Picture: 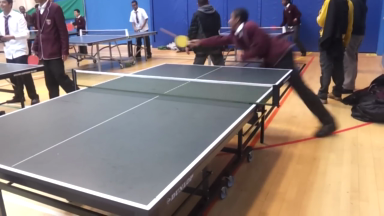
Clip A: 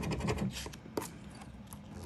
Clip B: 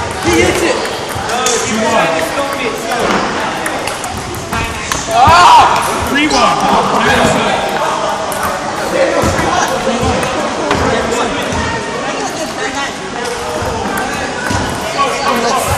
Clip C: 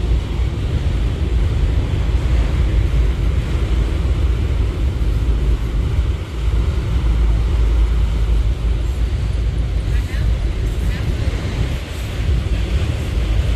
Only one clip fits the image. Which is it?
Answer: B